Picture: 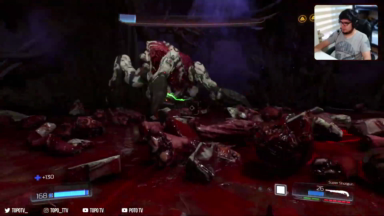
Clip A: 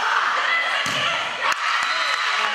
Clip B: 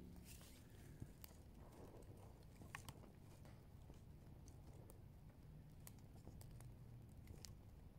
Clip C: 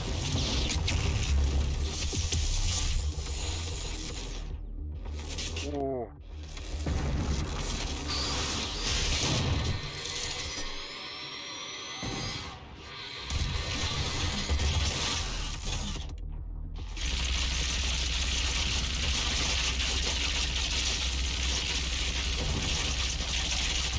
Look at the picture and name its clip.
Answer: C